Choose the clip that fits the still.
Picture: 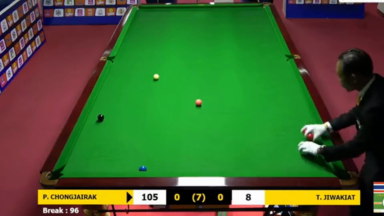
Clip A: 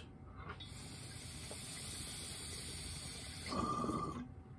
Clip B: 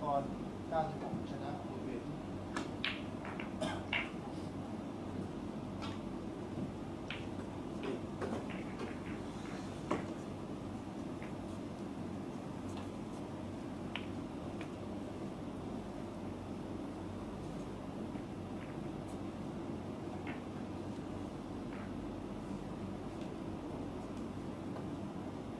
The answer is B